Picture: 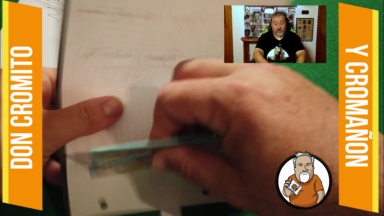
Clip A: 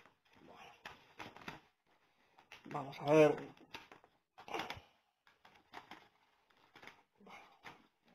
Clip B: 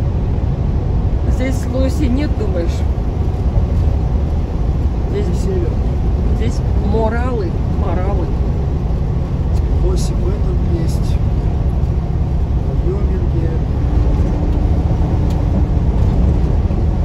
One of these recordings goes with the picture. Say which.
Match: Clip A